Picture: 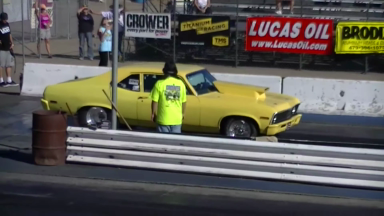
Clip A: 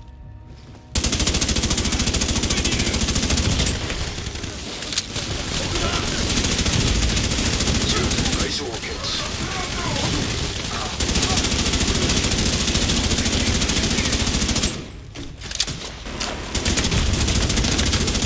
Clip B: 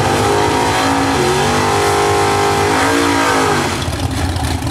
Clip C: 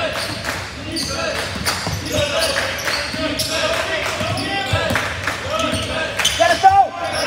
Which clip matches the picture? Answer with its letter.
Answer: B